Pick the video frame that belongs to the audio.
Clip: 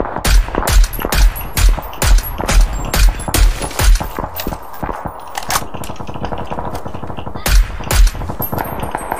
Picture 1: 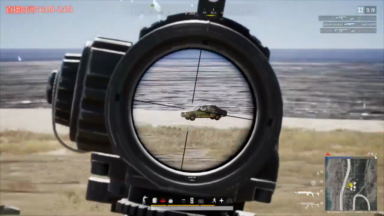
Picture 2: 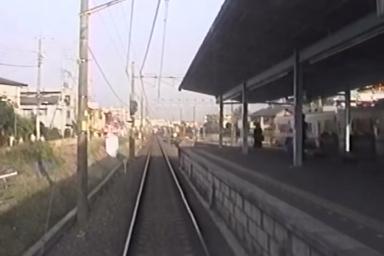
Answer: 1